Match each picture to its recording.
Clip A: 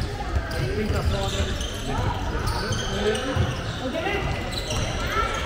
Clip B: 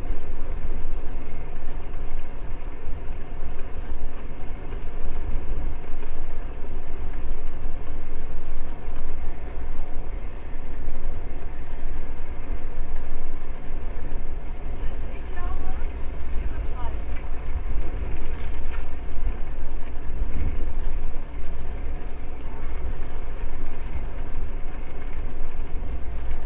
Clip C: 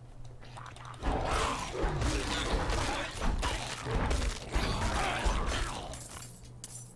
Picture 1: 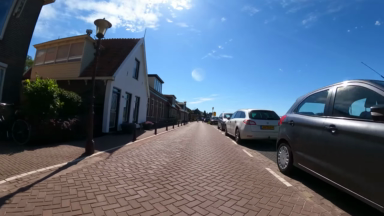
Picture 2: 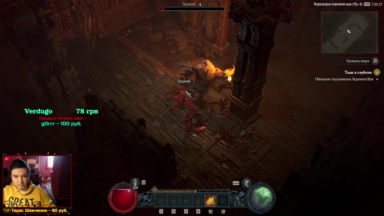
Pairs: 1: B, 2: C